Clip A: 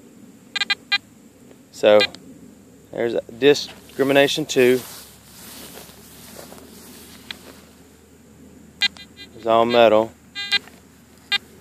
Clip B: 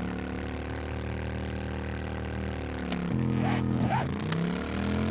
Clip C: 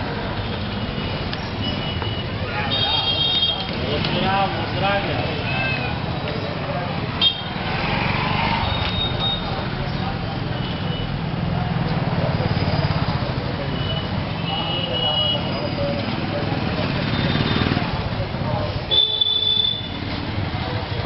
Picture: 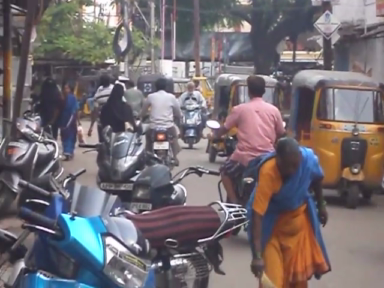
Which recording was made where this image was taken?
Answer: C